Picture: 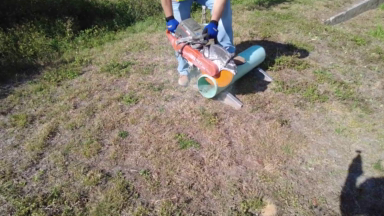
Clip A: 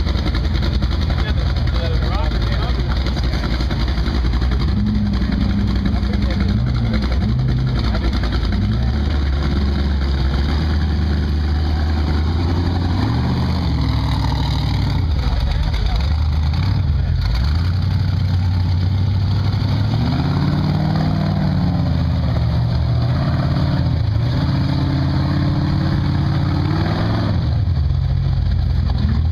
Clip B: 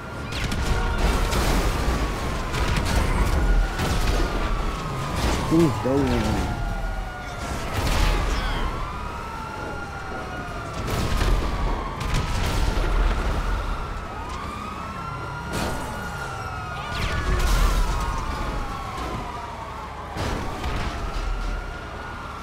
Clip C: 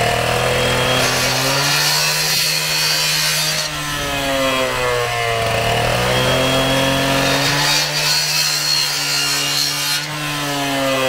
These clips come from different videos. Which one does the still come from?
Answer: C